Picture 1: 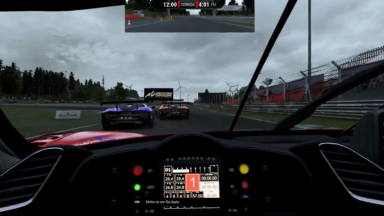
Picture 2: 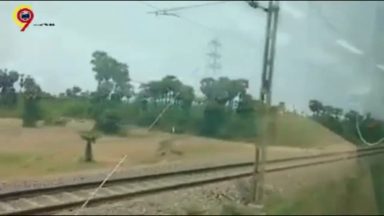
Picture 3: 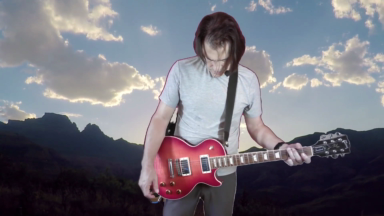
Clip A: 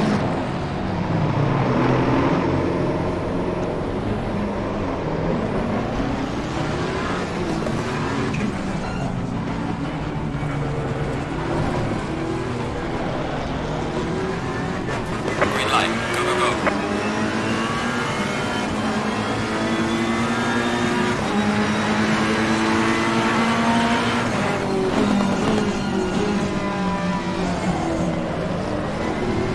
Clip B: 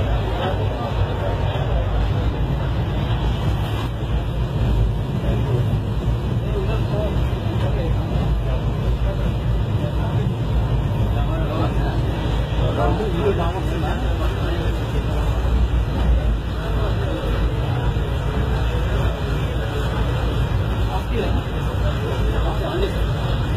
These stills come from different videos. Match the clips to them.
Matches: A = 1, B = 2